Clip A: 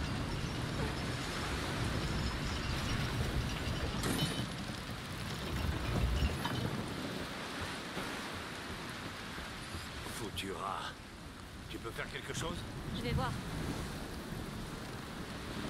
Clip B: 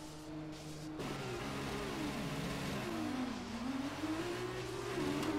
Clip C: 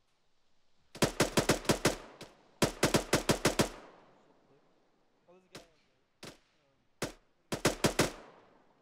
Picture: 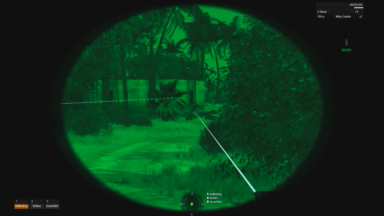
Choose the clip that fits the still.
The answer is C